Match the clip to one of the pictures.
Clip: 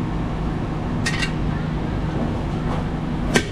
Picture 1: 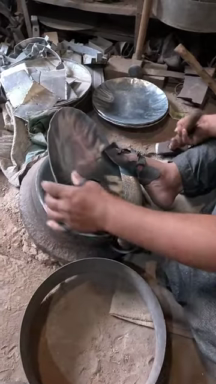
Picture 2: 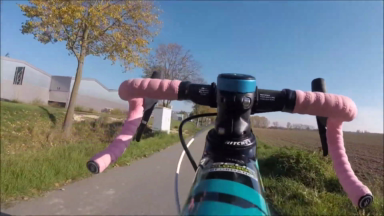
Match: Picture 1